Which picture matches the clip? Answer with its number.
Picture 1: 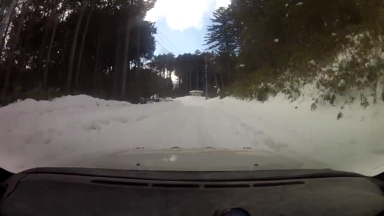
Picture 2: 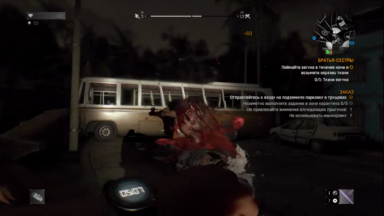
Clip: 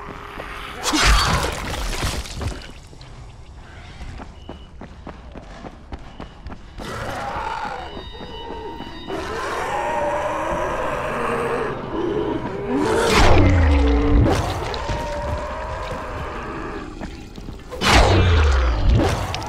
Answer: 2